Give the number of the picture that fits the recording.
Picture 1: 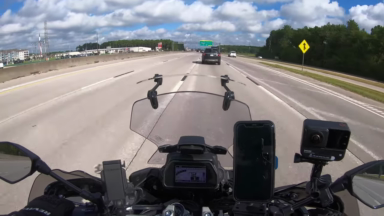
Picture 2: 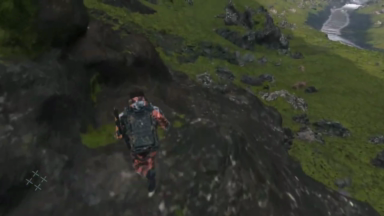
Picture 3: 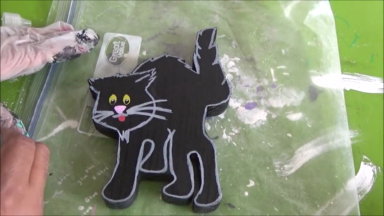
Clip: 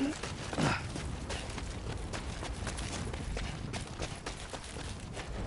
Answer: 2